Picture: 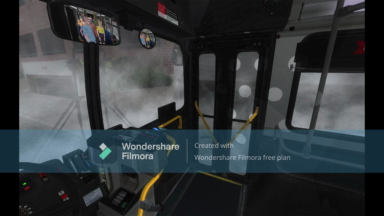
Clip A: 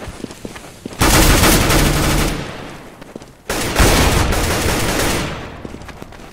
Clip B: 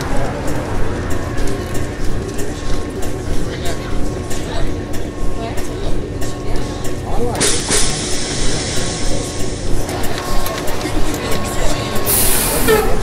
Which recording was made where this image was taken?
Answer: B